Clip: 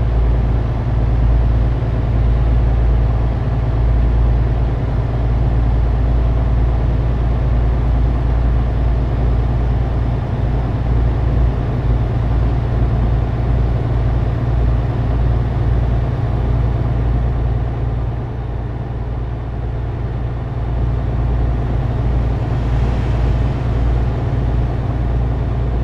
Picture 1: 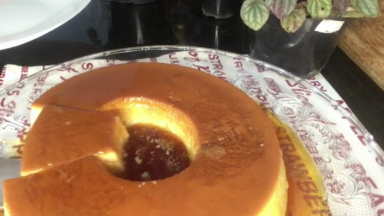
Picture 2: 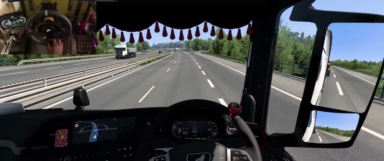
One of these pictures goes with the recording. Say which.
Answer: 2